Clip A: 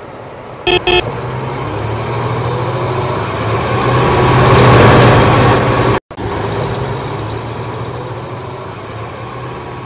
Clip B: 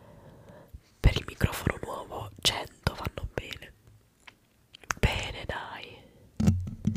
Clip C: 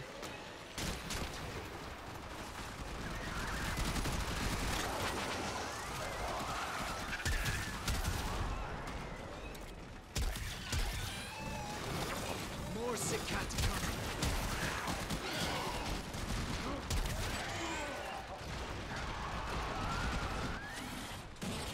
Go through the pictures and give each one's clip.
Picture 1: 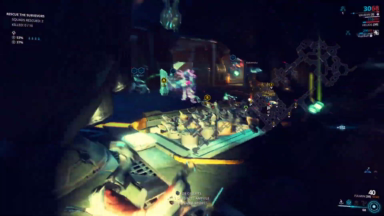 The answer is C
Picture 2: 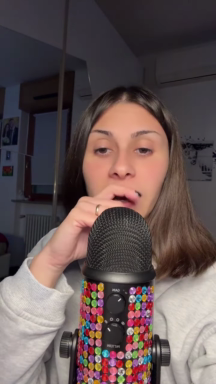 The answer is B